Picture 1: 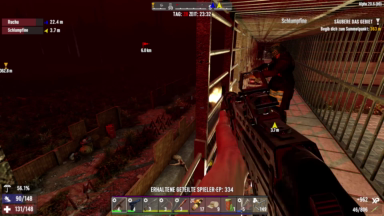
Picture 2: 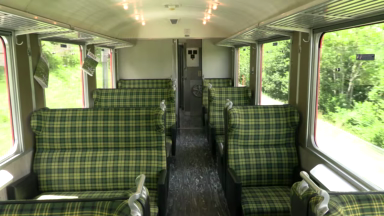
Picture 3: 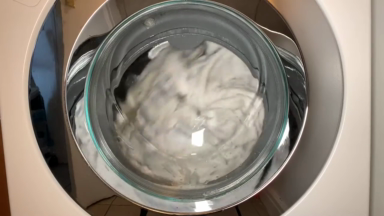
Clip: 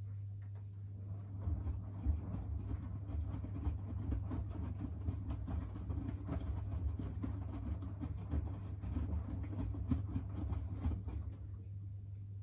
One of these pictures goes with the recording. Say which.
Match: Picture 3